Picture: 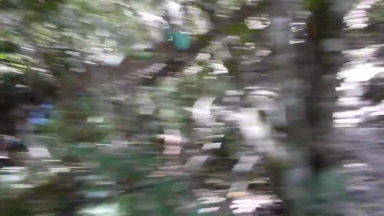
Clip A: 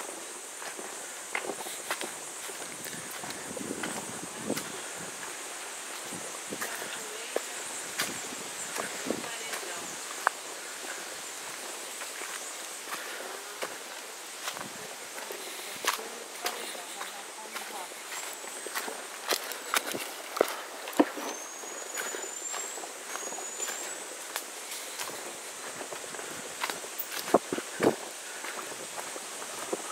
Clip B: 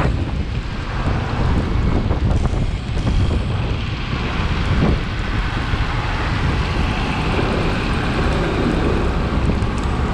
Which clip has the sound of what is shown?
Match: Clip A